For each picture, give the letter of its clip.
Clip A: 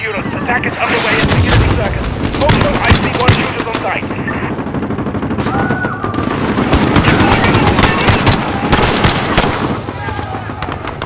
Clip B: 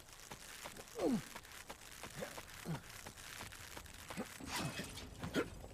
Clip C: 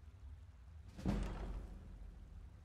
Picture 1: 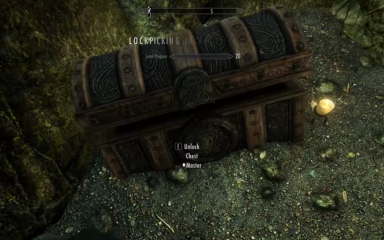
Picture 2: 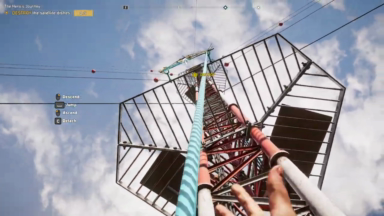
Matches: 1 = C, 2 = B